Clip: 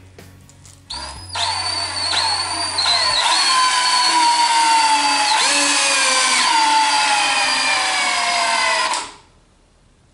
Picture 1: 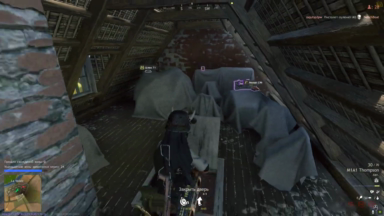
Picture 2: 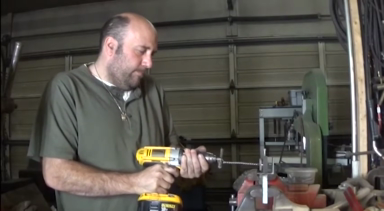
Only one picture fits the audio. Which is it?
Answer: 2